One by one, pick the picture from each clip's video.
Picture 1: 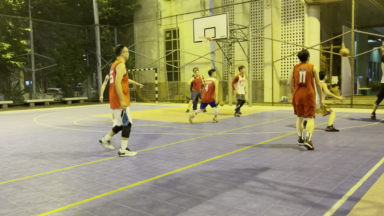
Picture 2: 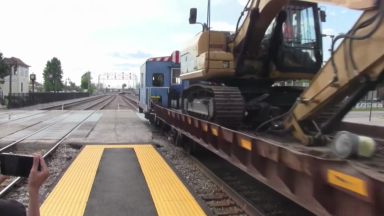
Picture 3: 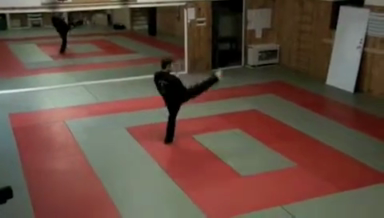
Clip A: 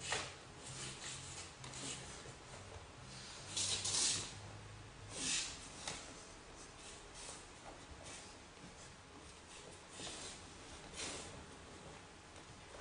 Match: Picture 3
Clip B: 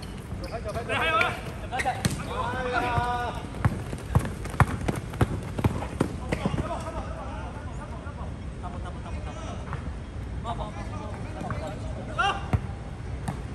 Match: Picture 1